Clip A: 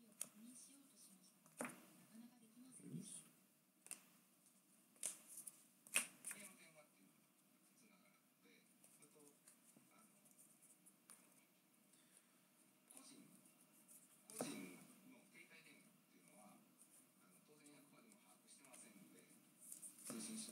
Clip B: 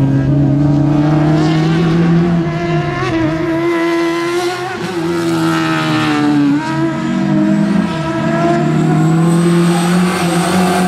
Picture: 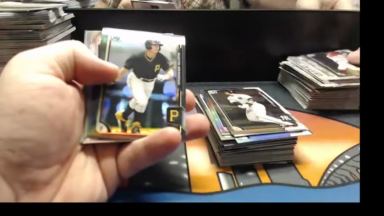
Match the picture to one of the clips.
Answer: A